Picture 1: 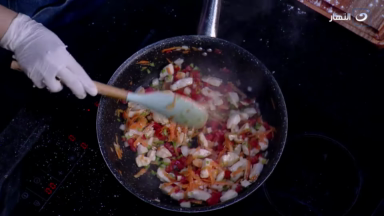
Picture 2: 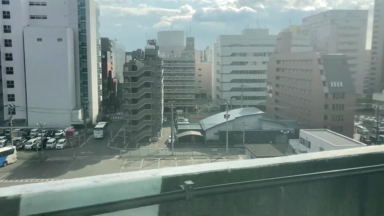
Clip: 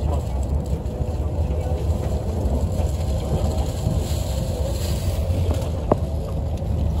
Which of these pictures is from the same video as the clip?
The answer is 2